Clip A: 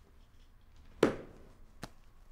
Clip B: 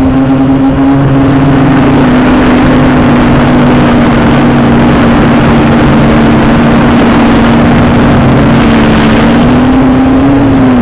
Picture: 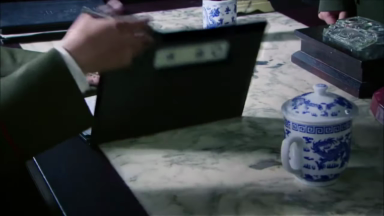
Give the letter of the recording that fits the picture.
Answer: A